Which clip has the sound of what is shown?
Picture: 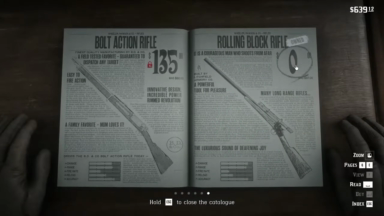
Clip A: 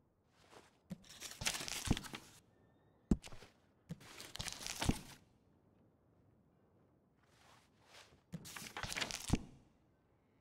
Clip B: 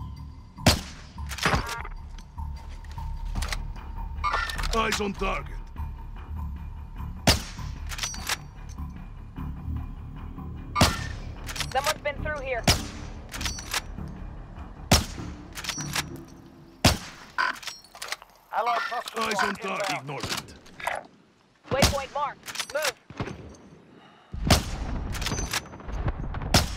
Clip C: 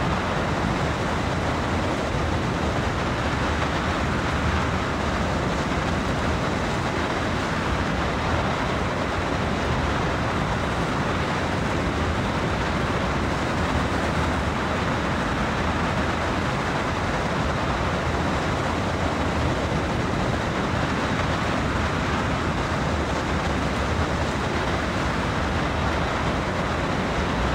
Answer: A